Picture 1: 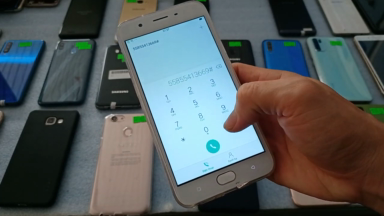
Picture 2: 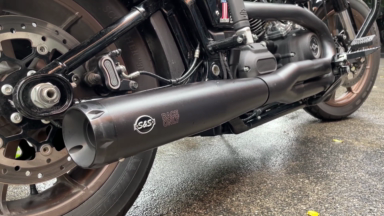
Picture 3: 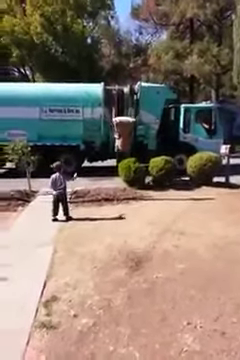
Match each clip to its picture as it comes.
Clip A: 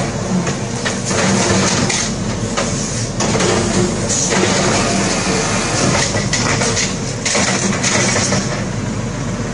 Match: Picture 3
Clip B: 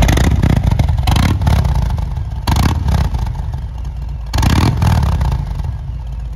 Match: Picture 2